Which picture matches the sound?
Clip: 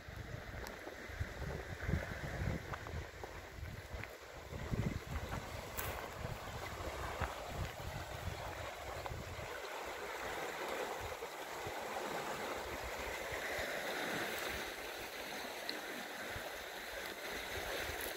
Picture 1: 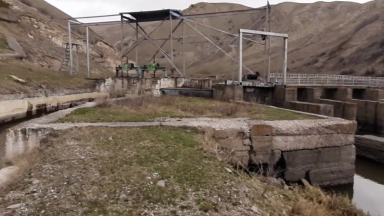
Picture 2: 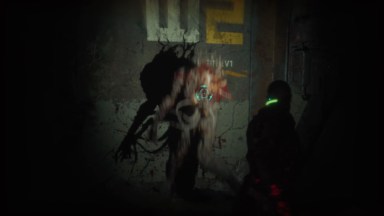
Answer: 1